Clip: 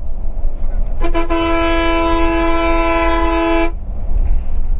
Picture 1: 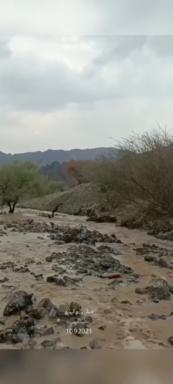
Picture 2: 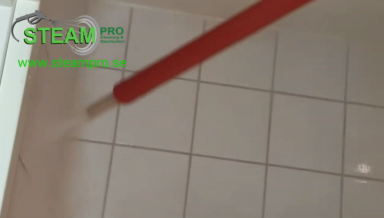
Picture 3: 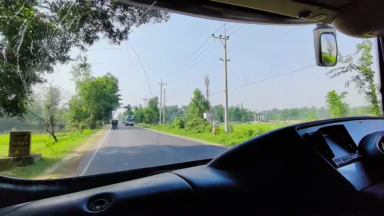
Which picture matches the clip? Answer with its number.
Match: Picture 3